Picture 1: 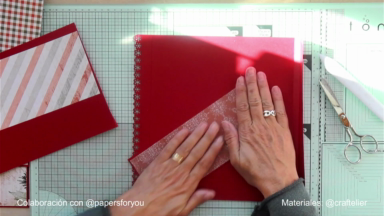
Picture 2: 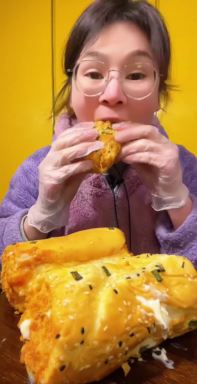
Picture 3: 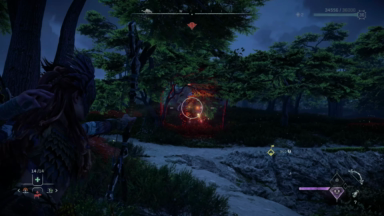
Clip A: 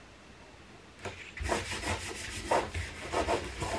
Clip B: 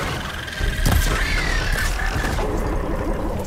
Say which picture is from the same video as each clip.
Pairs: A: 1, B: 3